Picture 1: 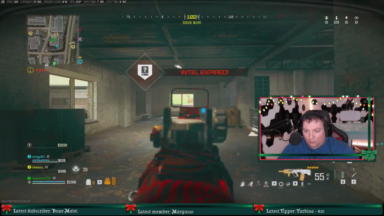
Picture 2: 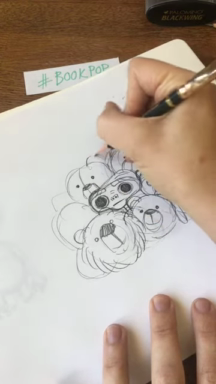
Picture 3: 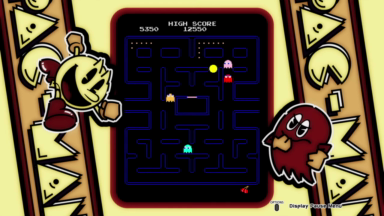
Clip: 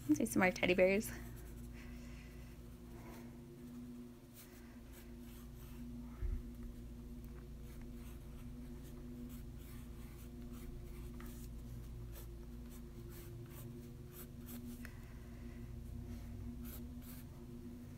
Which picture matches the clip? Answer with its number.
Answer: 2